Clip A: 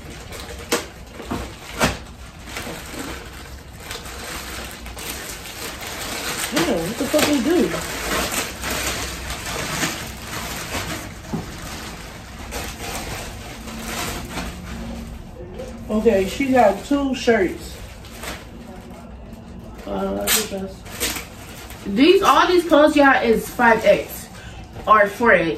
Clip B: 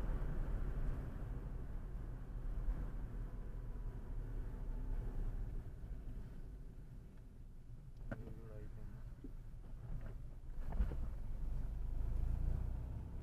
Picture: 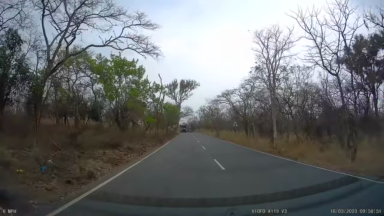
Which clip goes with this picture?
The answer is B